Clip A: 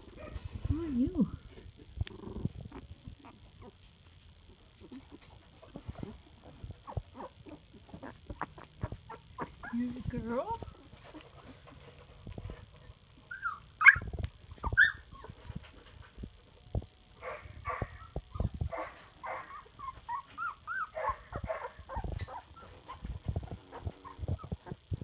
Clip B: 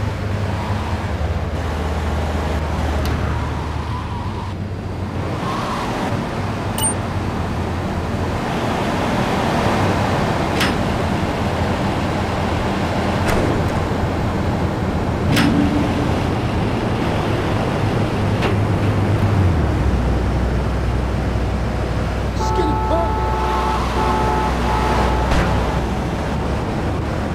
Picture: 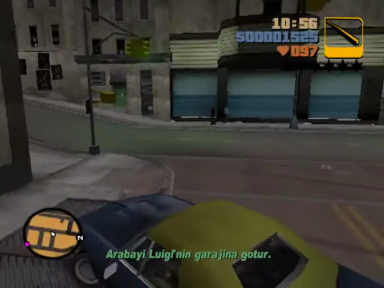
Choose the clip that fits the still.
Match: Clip B